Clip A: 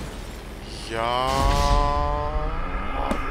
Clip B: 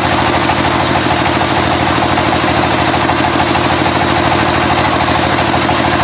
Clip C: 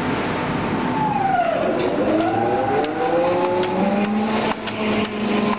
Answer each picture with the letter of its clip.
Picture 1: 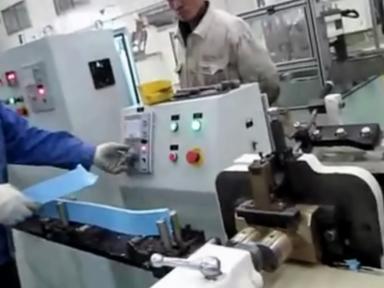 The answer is C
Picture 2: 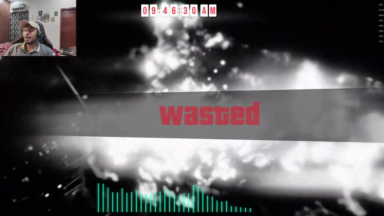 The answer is A